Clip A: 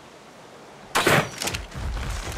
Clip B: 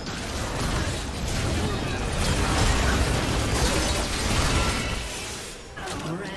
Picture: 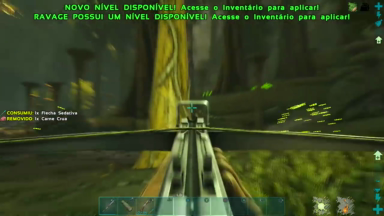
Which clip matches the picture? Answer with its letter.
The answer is A